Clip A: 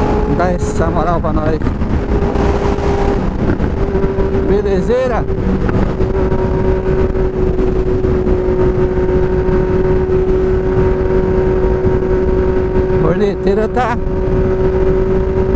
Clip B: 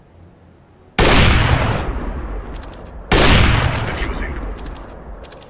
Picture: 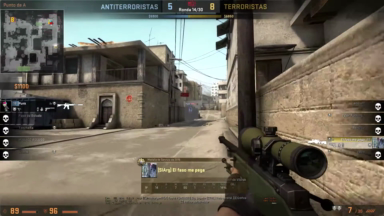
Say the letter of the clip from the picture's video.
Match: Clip B